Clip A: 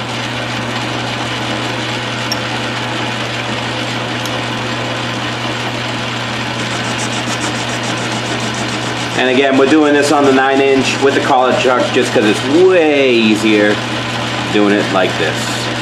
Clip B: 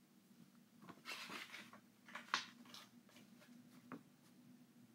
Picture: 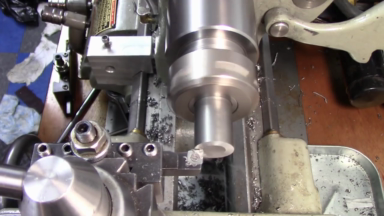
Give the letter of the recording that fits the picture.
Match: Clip A